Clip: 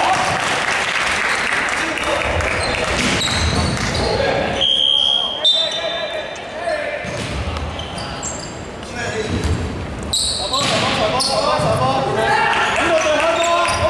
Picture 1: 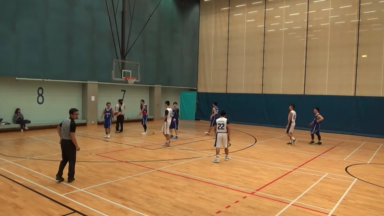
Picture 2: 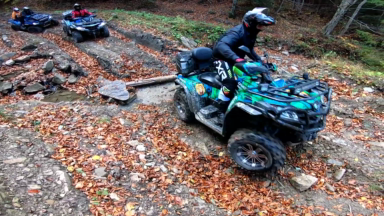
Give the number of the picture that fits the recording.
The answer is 1